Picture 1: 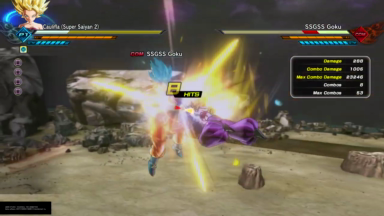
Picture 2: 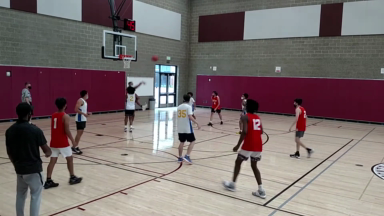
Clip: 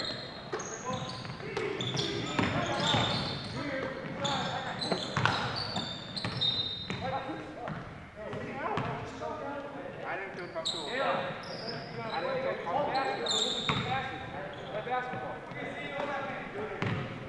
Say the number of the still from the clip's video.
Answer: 2